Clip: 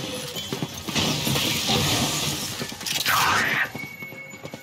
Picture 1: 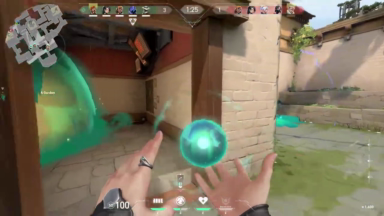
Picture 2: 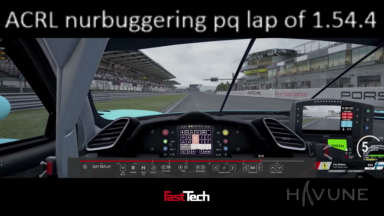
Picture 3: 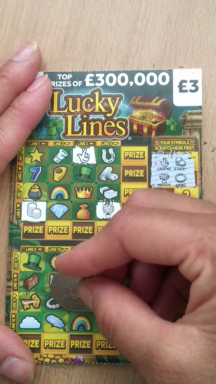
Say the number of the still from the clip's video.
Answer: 1